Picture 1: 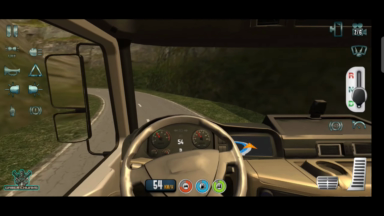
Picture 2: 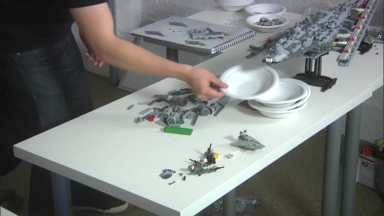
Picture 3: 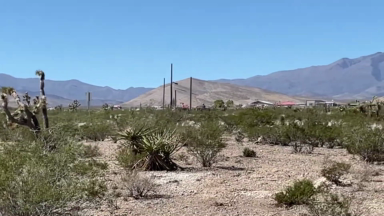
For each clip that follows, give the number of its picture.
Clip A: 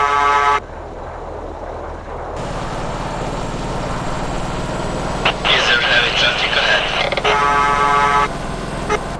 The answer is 1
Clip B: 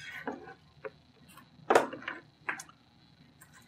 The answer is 2